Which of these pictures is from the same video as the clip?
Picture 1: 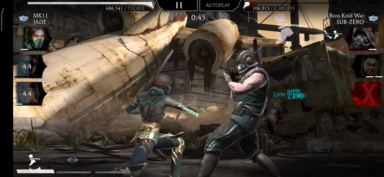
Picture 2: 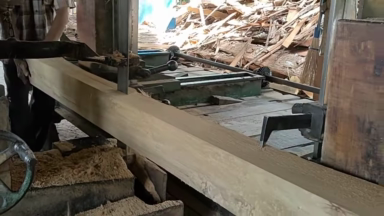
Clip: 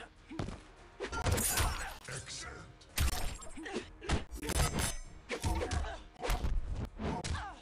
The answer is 1